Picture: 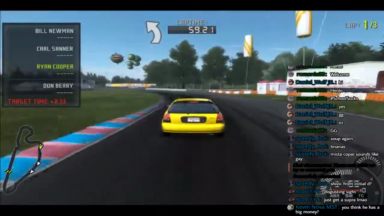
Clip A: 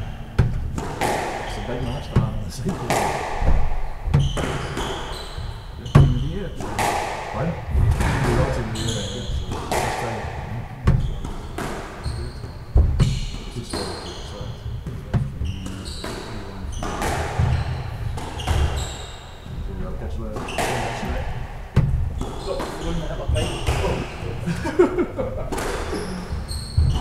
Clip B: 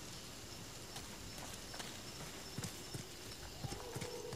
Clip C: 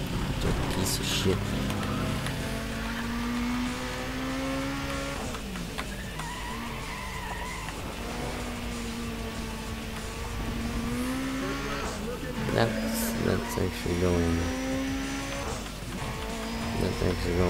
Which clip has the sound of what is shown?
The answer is C